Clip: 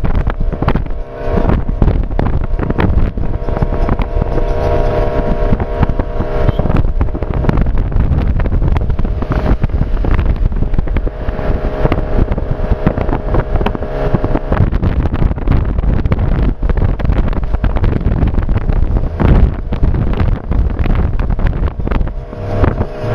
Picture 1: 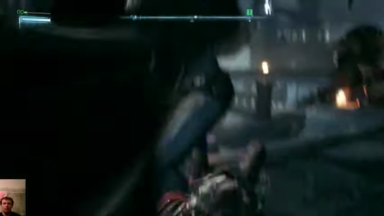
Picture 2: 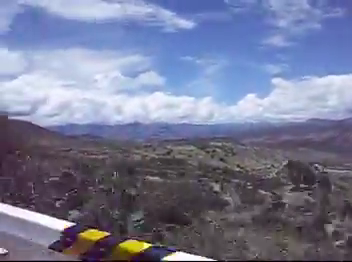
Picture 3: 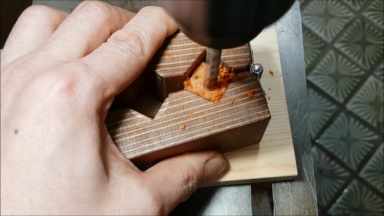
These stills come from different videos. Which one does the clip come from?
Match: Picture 2